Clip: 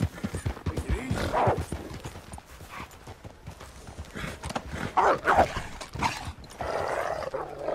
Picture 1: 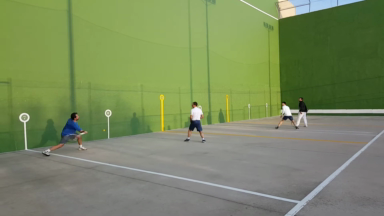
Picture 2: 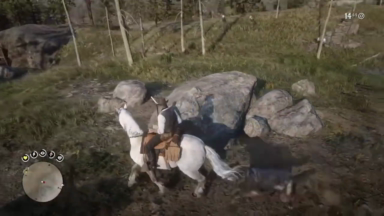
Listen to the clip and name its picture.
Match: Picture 2